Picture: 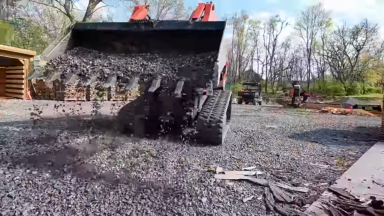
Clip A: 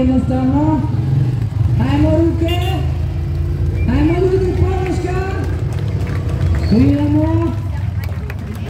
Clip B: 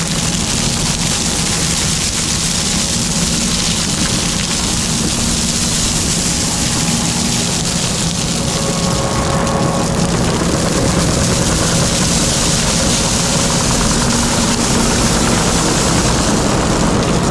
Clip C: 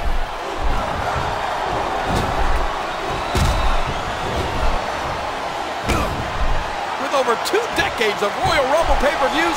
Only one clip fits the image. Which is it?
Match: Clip B